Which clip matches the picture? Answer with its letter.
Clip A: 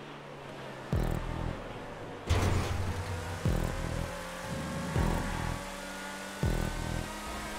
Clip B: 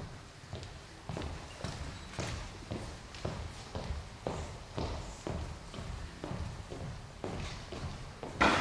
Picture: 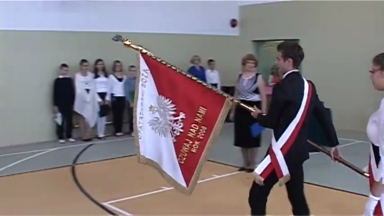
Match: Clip B